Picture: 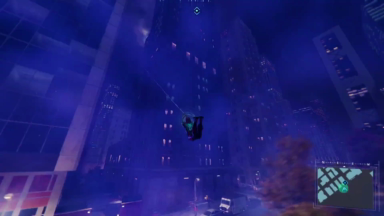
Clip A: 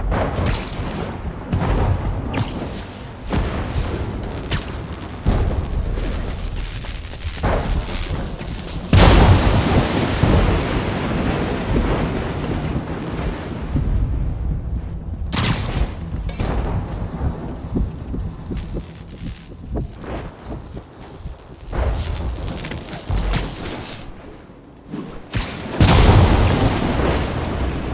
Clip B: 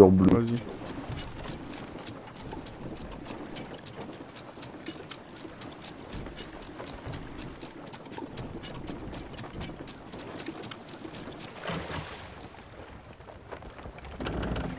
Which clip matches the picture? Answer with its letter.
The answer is A